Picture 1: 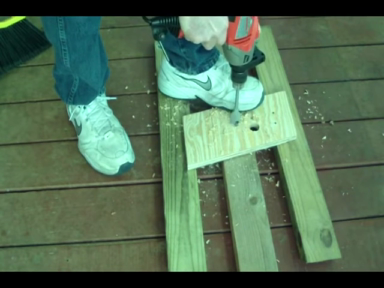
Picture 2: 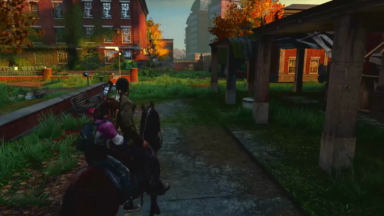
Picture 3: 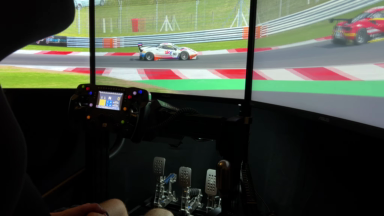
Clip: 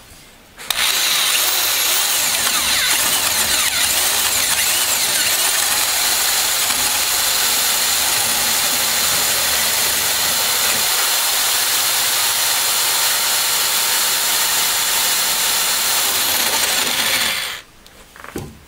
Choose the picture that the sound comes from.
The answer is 1